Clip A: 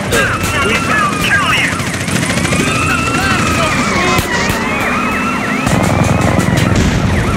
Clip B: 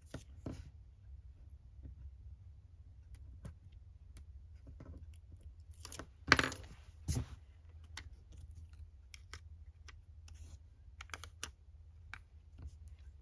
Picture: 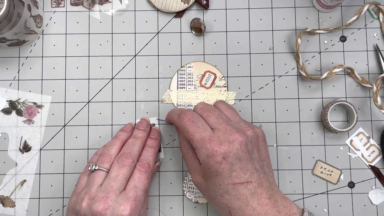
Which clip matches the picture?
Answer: B